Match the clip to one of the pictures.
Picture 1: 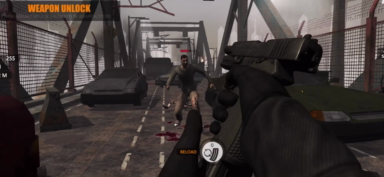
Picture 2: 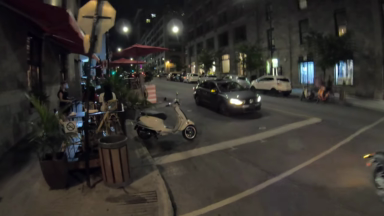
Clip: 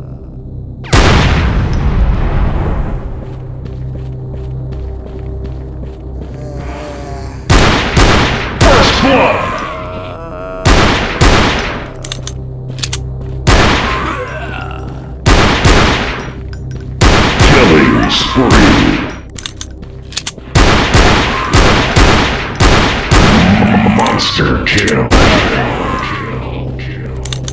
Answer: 1